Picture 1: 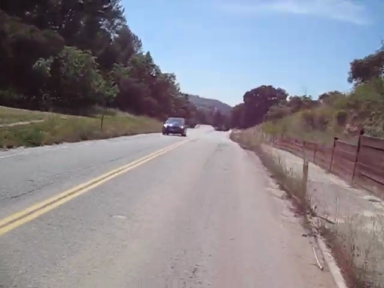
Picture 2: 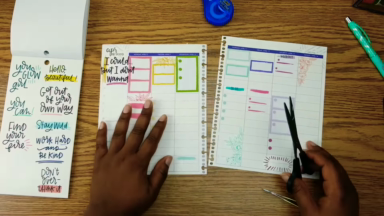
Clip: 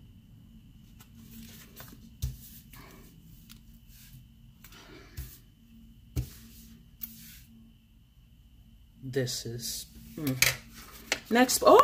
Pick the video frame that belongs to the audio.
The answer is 2